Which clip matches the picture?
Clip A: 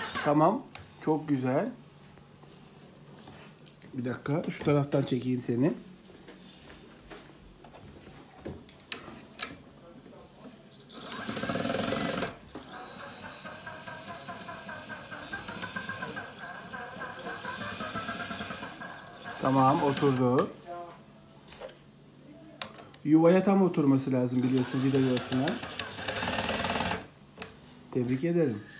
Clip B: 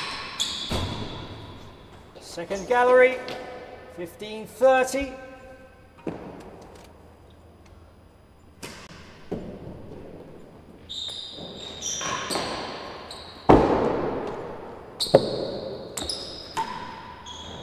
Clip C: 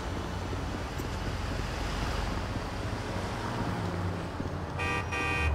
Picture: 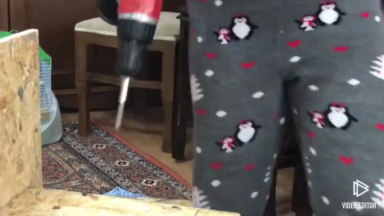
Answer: A